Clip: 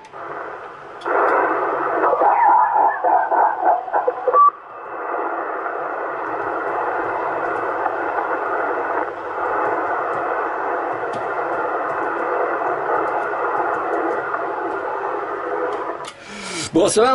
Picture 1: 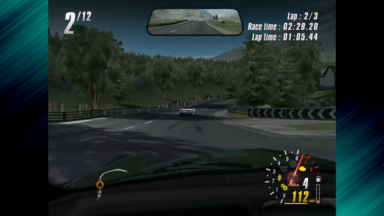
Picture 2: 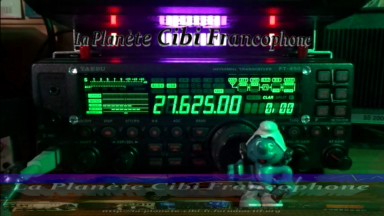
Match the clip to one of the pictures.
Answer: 2